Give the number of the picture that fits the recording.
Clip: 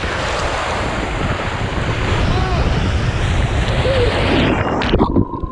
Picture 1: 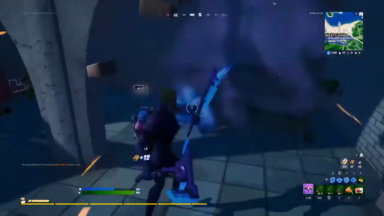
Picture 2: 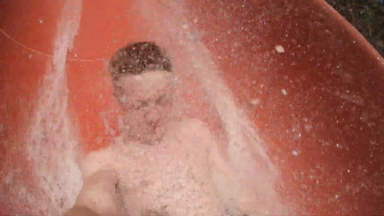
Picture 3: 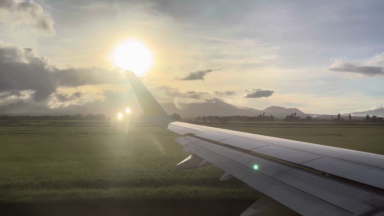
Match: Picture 2